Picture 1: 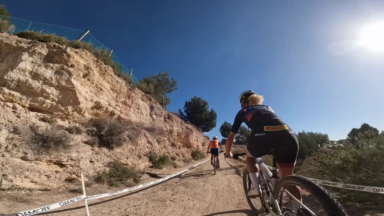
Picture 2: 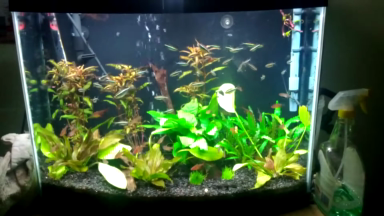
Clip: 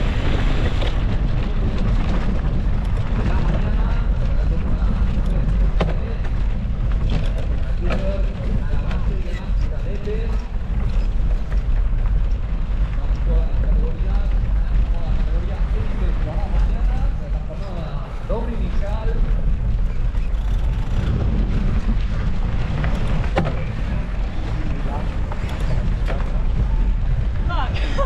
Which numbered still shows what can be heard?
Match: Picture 1